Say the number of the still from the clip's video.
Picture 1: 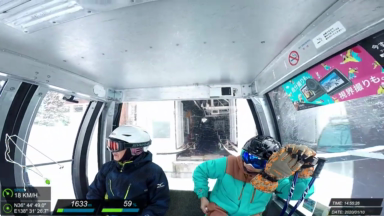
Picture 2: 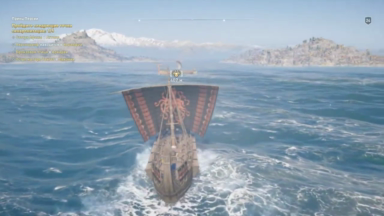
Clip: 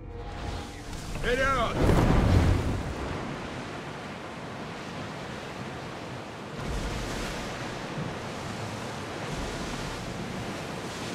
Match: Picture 2